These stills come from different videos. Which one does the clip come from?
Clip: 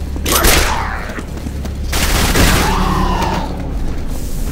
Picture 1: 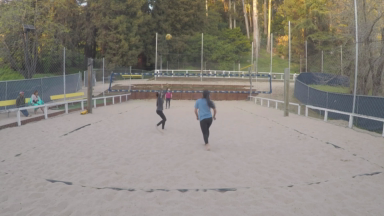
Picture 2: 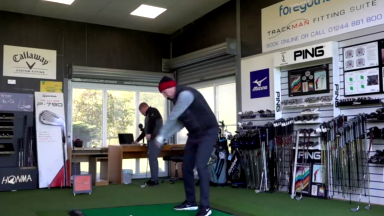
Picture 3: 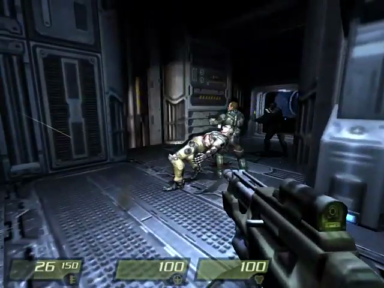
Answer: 3